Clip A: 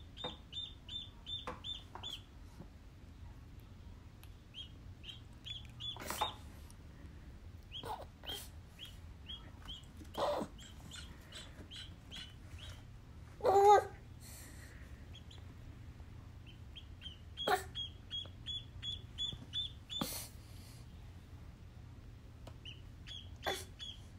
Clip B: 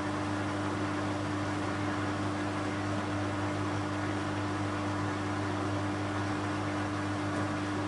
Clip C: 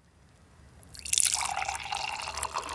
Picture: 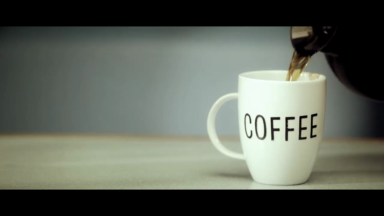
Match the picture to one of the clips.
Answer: C